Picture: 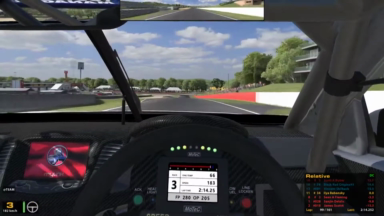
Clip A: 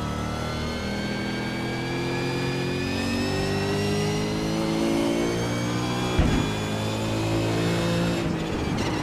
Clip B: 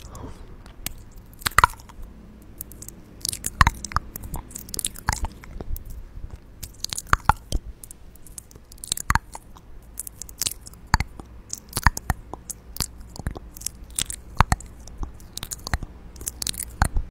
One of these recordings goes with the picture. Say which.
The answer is A